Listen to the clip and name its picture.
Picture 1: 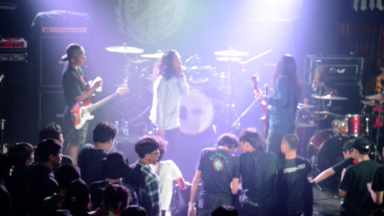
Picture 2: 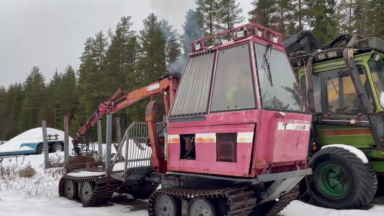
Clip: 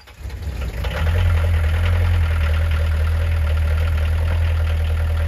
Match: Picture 2